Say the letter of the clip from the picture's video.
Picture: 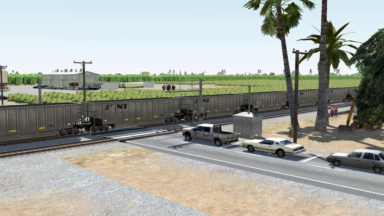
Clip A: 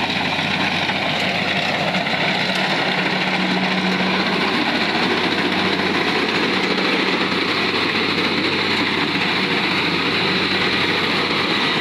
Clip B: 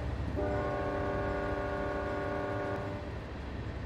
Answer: B